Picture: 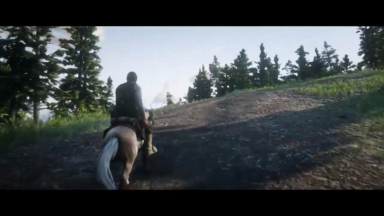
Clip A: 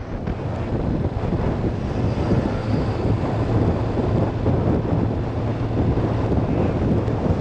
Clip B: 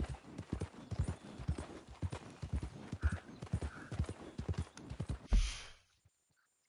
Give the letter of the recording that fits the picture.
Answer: B